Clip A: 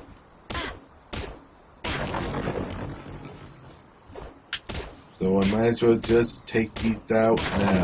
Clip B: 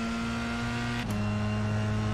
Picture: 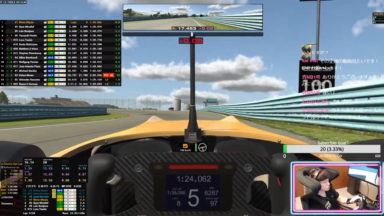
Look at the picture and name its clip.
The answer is B